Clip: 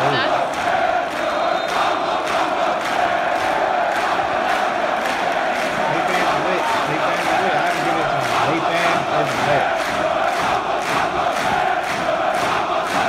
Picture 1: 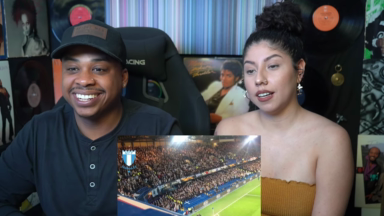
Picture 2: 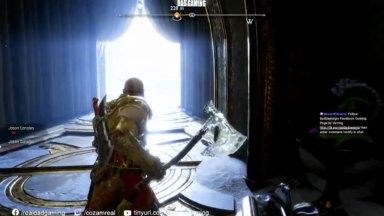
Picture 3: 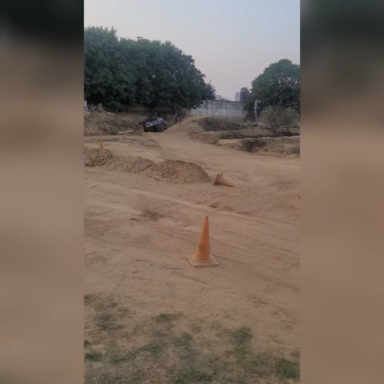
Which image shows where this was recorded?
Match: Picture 1